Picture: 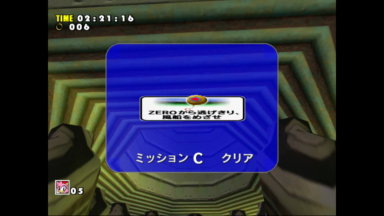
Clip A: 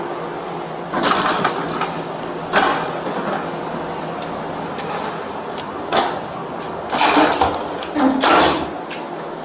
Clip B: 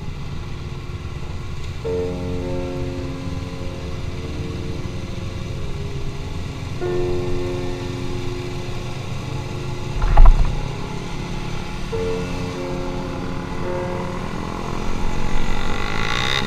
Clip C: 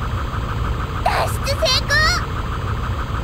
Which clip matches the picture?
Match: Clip C